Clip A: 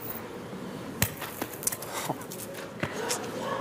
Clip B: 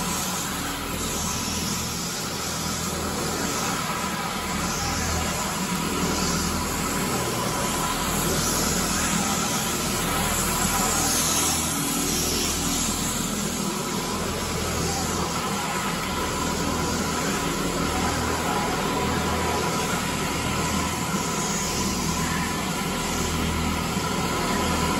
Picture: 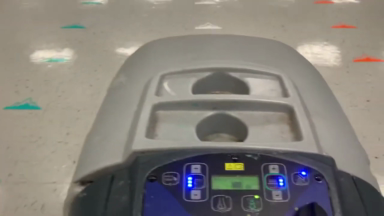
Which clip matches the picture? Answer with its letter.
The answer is B